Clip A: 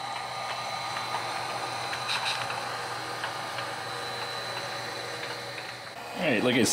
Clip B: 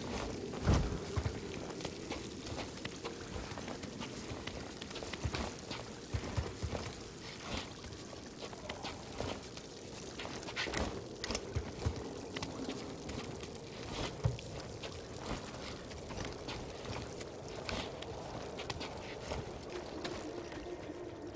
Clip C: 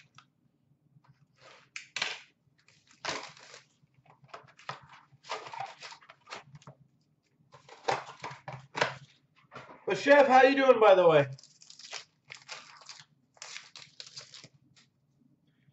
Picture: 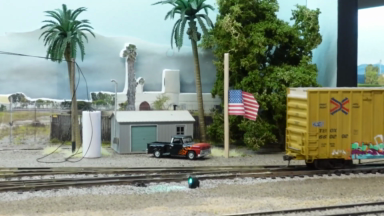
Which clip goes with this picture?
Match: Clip A